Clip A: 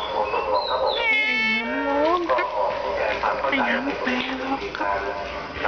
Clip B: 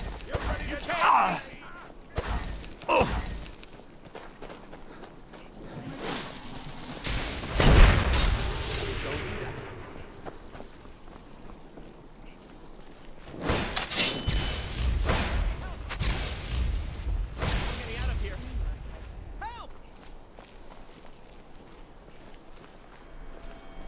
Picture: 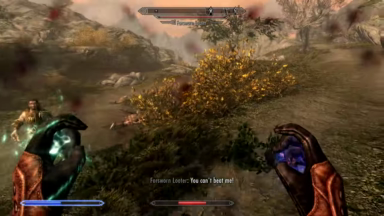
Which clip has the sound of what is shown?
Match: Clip B